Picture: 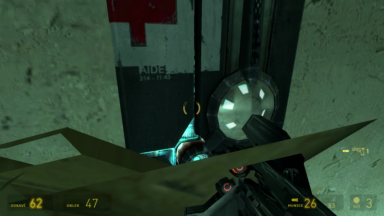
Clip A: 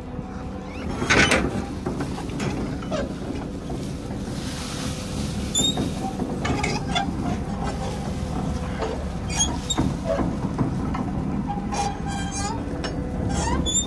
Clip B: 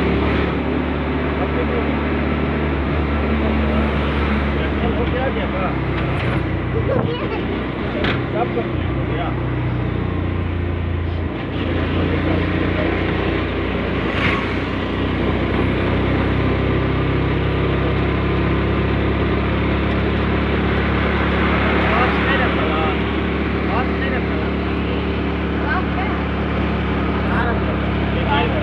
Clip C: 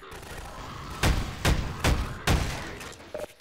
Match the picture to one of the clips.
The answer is C